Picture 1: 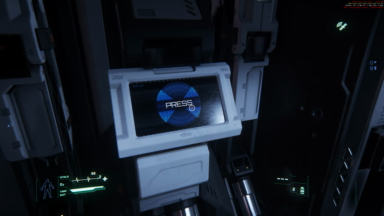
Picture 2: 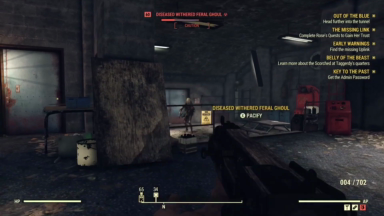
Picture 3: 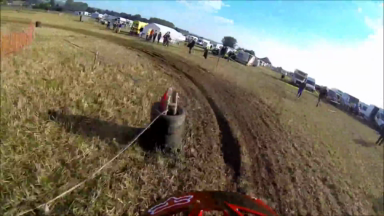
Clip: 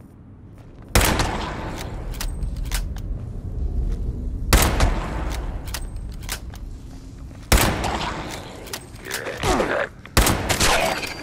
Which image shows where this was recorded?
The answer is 2